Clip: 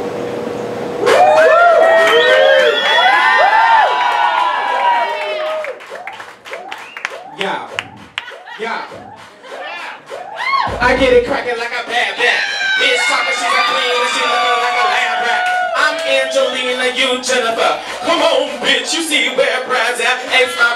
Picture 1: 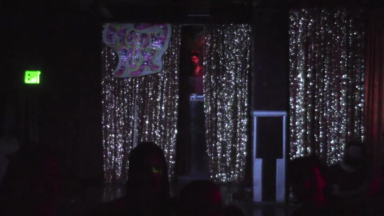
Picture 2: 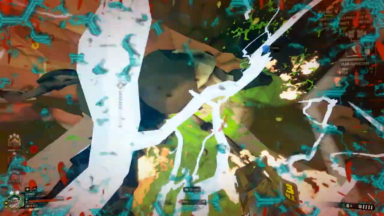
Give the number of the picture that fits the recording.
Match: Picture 1